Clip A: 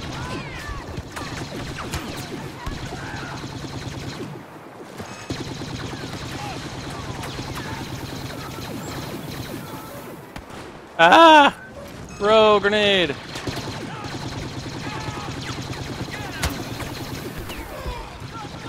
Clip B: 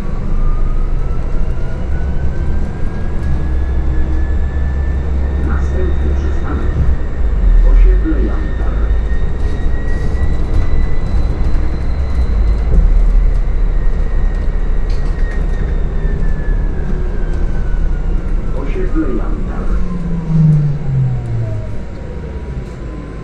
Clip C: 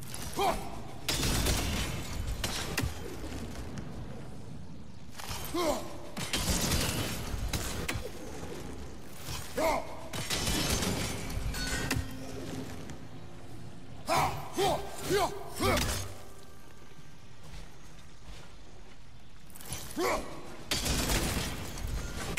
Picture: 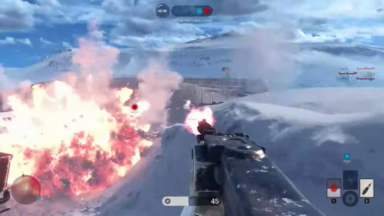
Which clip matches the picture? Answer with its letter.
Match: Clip A